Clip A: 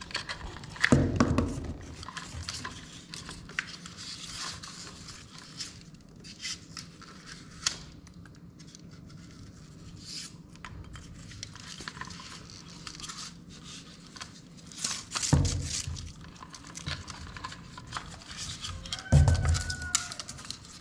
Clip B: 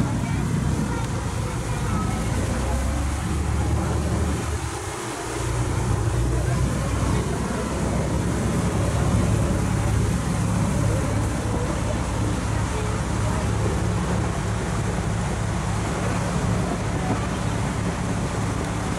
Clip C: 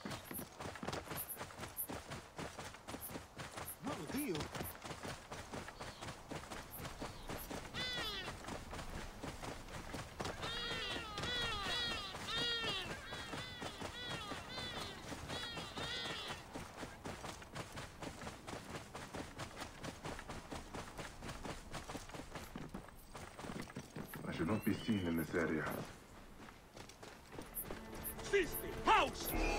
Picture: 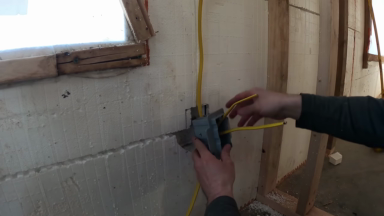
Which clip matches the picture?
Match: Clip A